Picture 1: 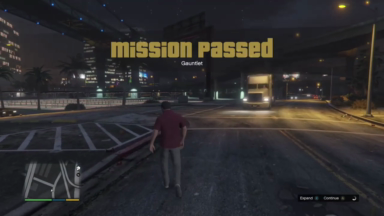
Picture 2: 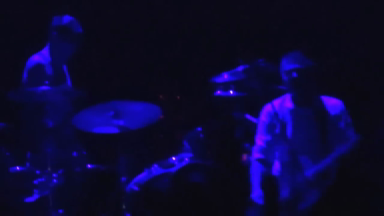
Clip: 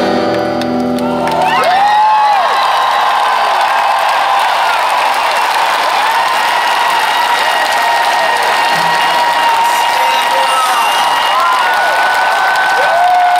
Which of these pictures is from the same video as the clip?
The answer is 2